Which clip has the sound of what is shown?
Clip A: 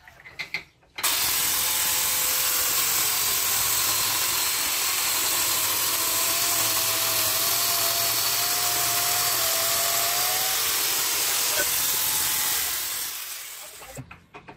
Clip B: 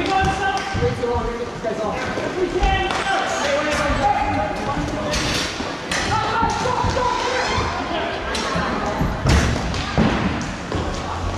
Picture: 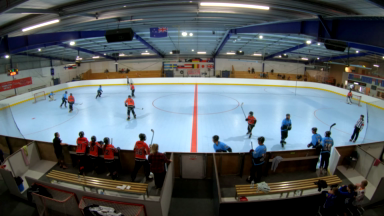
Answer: B